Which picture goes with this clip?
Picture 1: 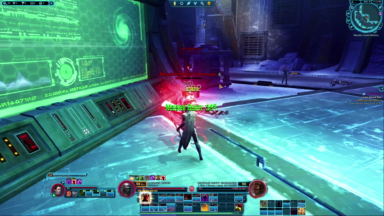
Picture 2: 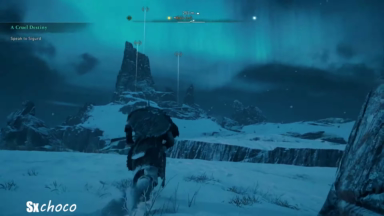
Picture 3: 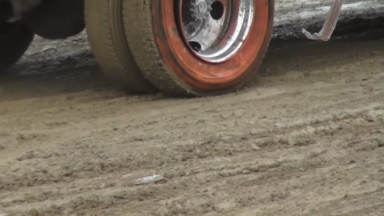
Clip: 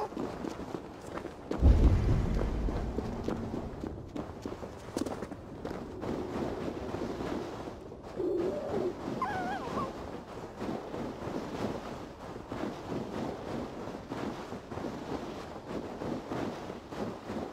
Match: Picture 2